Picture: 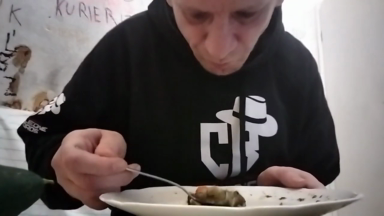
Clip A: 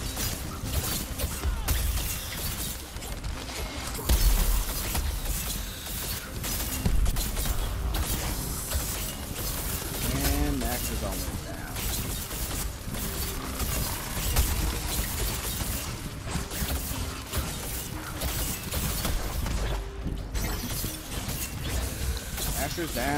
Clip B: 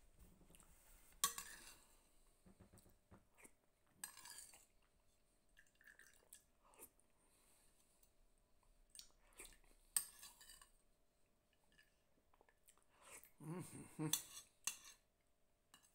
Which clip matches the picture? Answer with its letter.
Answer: B